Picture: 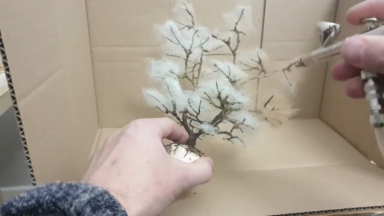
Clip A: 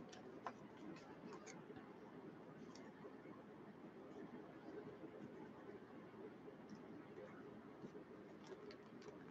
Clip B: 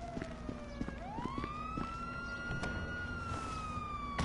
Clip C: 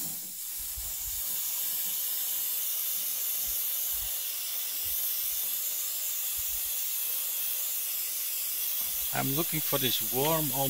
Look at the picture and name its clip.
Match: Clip C